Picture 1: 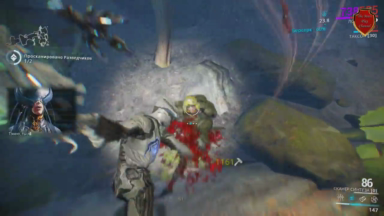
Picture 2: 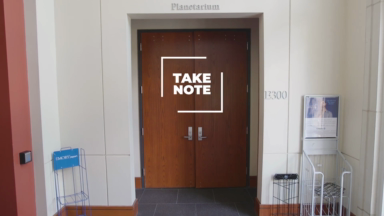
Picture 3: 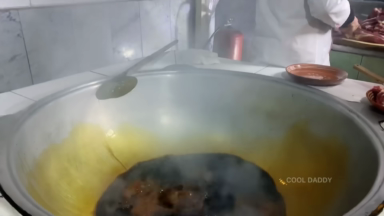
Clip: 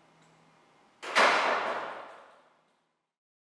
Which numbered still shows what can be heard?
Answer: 2